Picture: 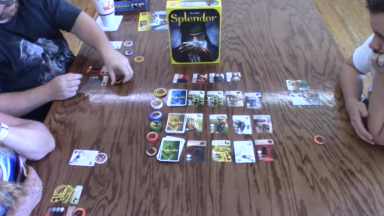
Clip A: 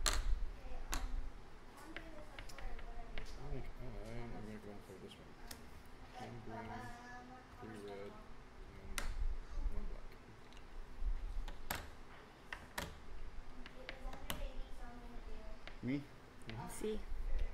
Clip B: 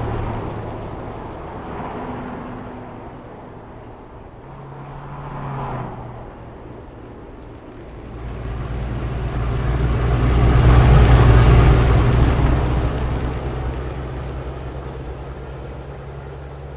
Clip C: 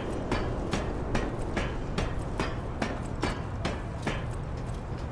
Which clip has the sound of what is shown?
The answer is A